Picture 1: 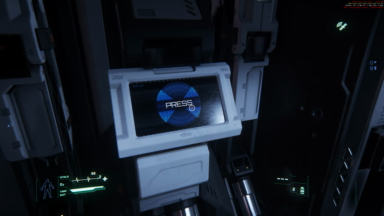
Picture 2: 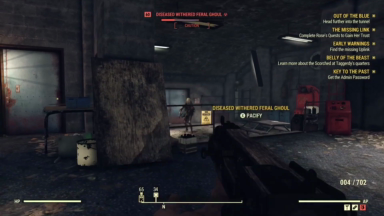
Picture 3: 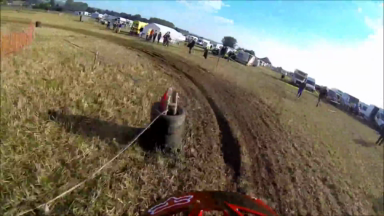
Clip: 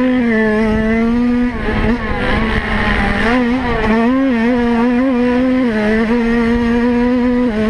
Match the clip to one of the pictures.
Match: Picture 3